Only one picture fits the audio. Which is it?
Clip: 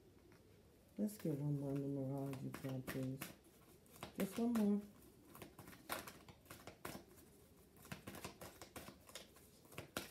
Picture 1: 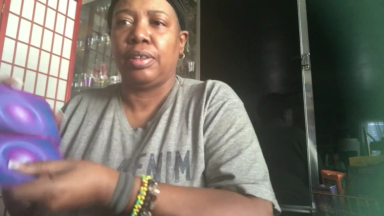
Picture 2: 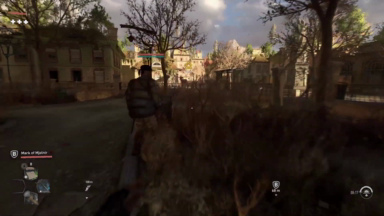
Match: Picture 1